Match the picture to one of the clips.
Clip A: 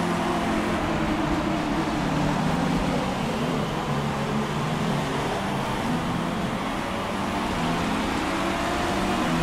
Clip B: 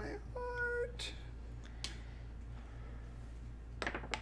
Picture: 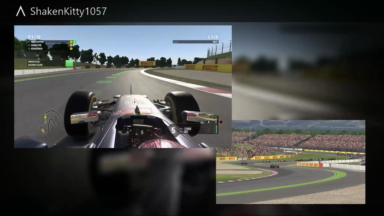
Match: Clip A